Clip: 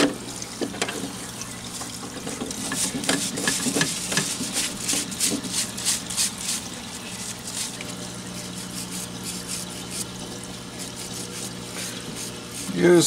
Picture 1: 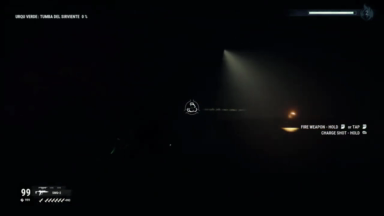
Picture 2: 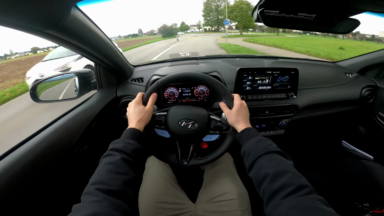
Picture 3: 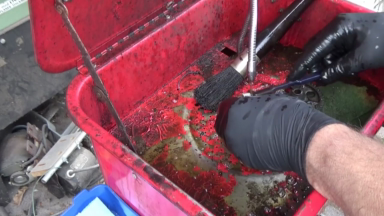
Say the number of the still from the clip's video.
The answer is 3